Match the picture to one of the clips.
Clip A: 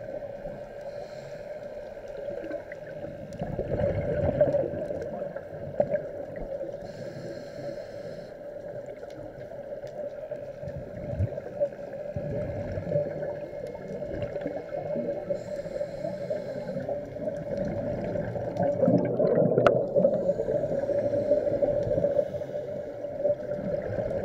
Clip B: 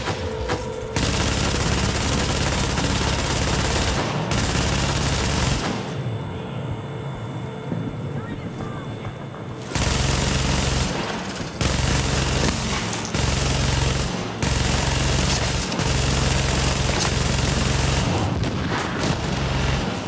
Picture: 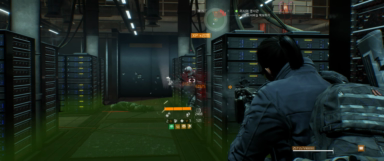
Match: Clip B